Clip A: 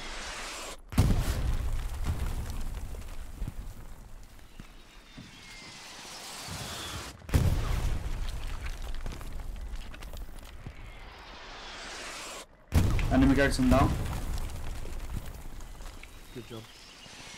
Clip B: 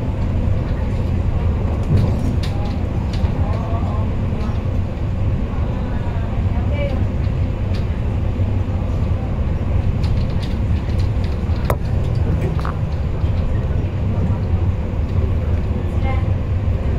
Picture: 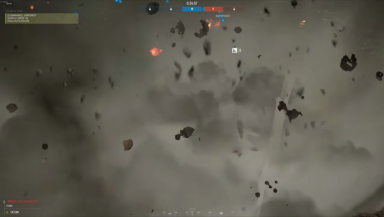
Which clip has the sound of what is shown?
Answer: A